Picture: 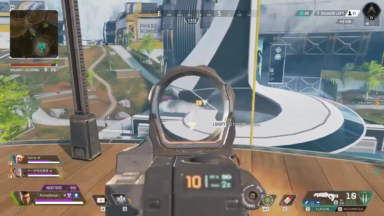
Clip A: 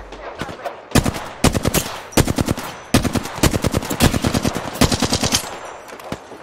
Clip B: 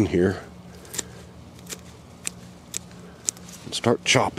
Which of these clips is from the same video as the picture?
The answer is A